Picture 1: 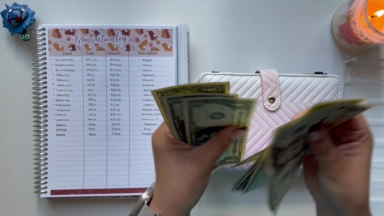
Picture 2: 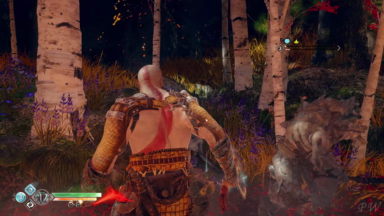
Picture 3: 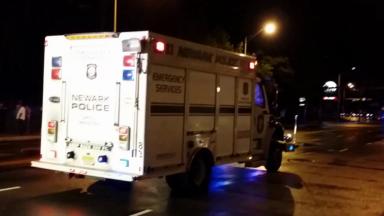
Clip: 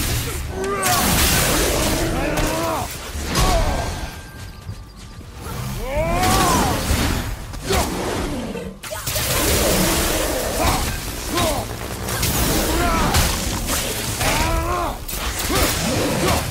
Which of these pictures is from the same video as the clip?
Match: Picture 2